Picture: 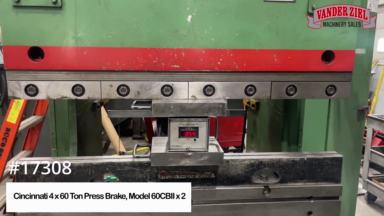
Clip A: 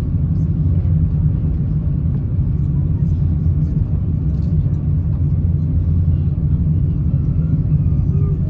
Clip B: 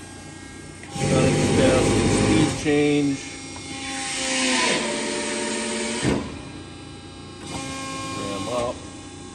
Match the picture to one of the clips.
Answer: B